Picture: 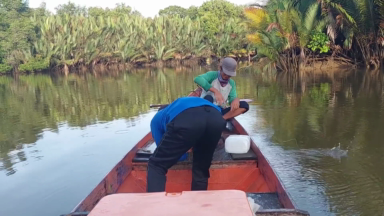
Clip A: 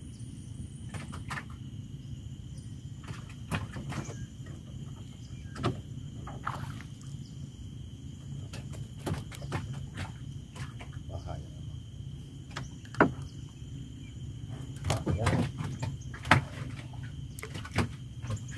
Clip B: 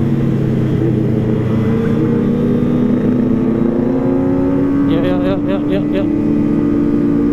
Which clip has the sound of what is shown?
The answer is A